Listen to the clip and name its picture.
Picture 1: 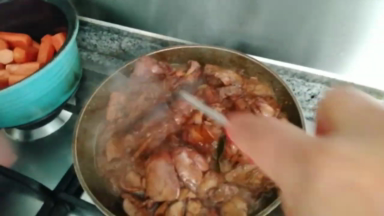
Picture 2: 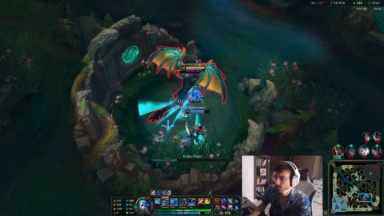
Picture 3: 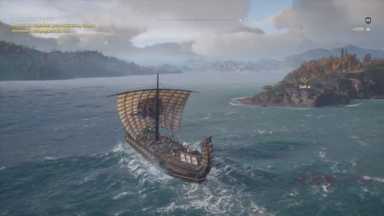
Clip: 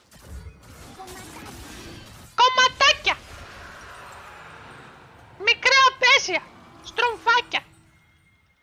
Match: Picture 2